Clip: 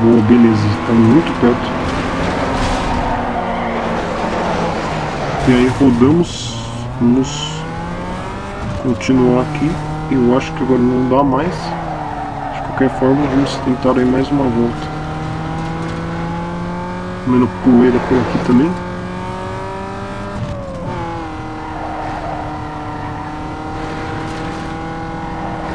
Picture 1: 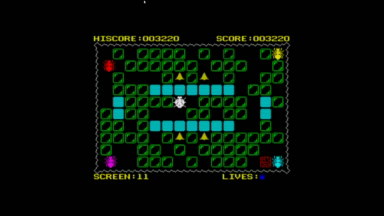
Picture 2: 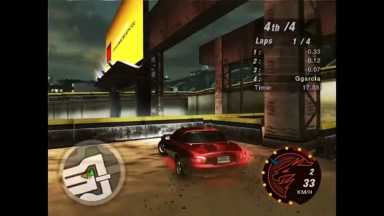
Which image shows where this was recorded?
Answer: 2